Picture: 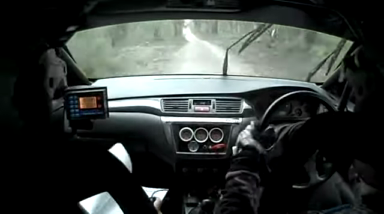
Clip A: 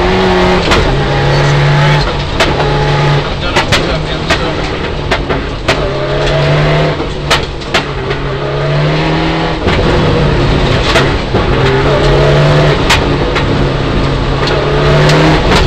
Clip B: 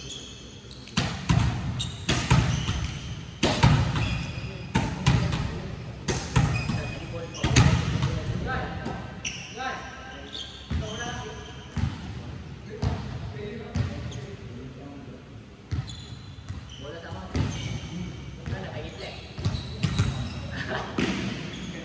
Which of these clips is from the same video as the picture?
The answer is A